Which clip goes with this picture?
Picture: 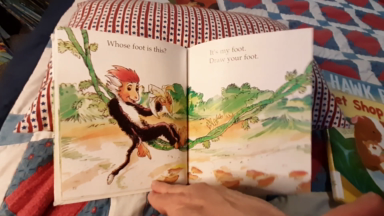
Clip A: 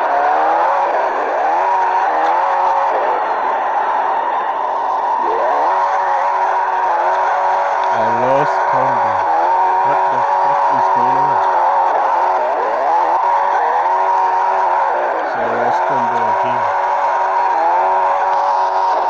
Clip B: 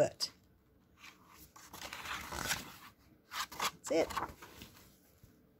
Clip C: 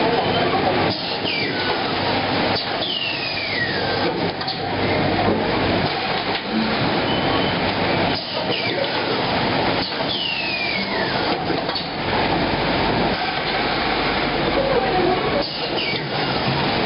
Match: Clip B